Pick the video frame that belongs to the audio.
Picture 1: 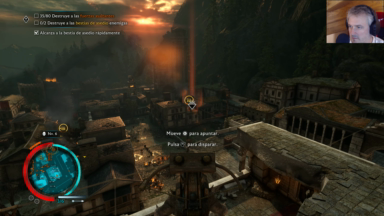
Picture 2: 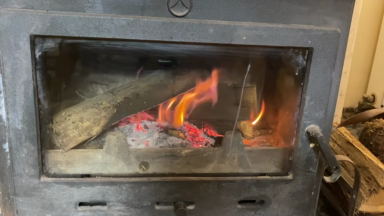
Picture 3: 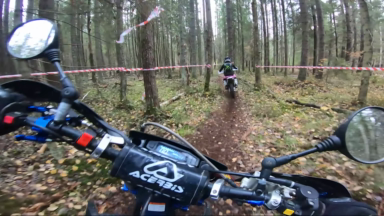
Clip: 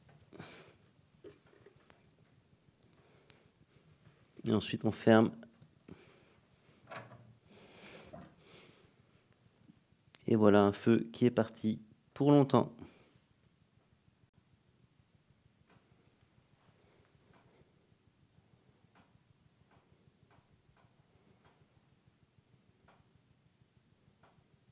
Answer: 2